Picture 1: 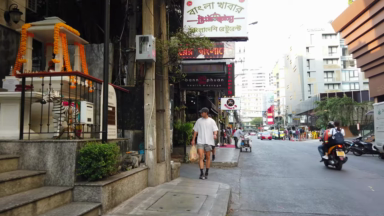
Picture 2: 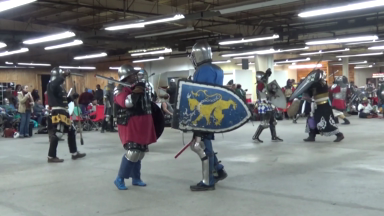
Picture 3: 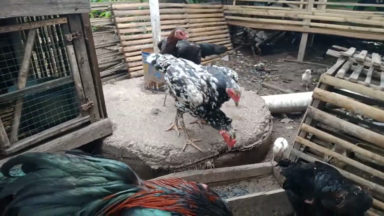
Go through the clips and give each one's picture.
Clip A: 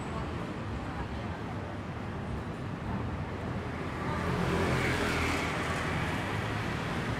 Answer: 1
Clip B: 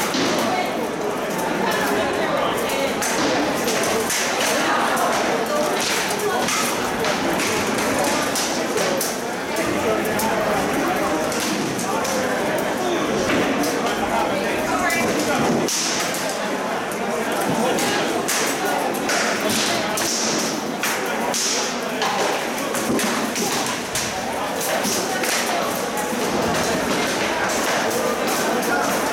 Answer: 2